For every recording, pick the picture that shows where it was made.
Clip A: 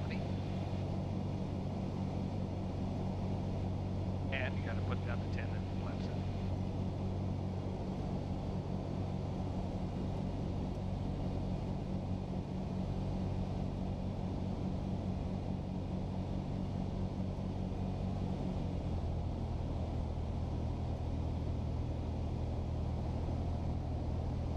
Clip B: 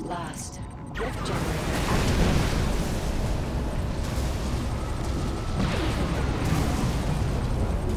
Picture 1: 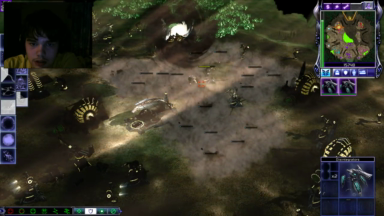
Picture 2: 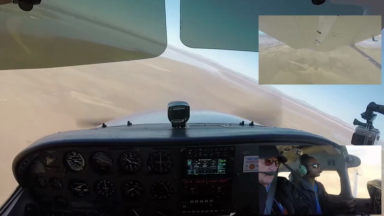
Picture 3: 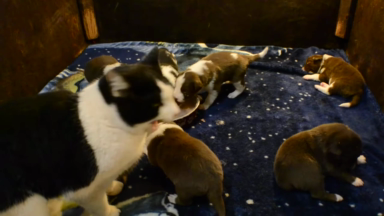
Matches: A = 2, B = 1